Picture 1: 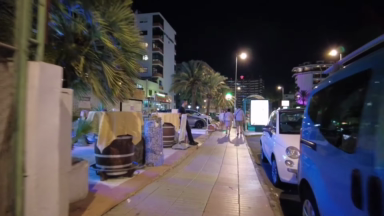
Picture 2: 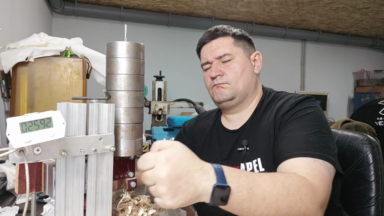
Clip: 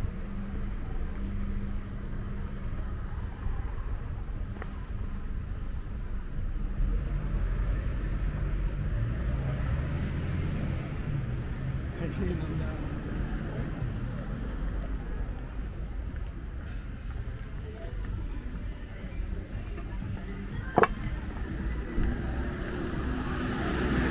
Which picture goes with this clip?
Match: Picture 1